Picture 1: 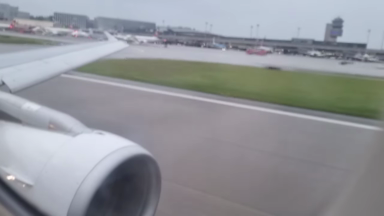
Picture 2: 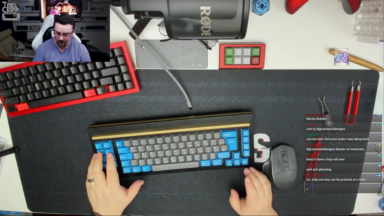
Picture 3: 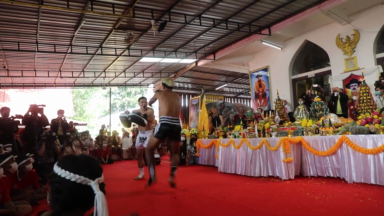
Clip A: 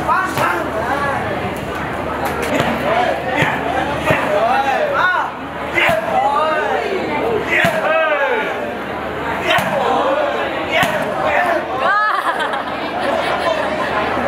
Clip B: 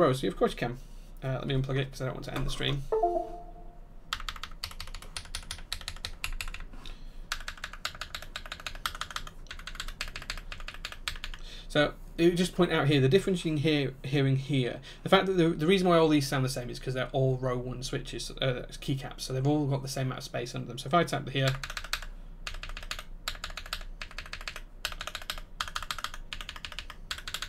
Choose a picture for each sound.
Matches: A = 3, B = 2